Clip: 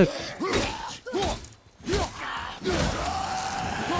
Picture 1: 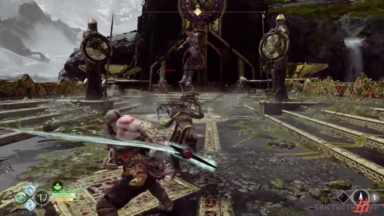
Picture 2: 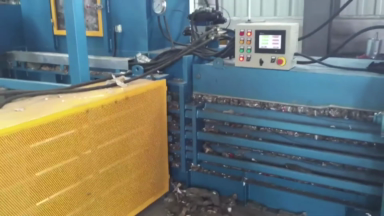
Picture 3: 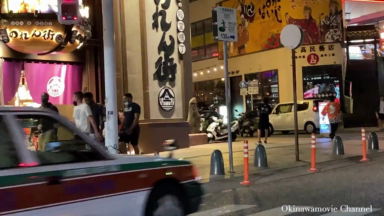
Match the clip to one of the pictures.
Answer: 1